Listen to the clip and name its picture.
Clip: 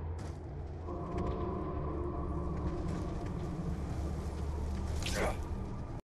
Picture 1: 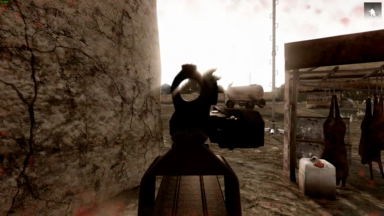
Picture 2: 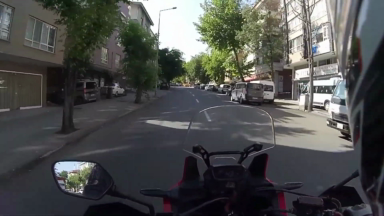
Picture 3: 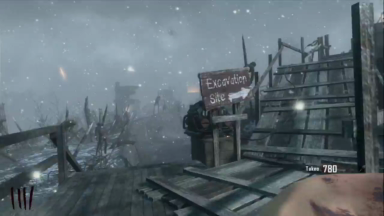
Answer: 3